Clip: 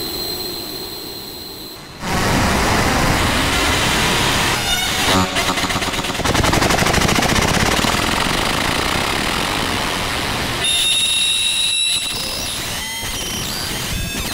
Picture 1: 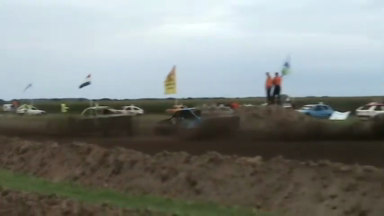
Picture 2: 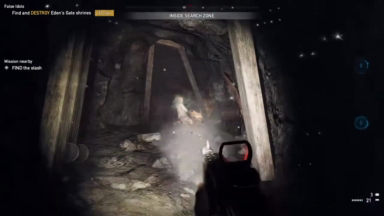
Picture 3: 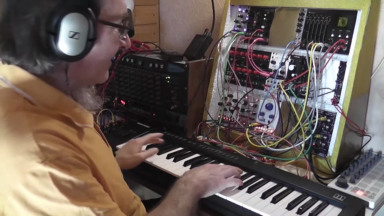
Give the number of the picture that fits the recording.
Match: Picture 3